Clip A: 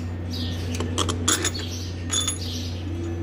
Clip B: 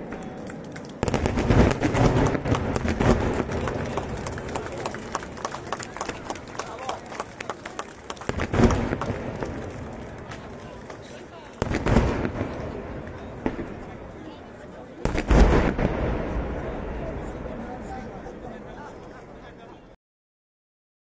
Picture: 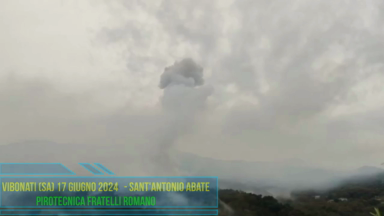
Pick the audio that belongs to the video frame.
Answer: B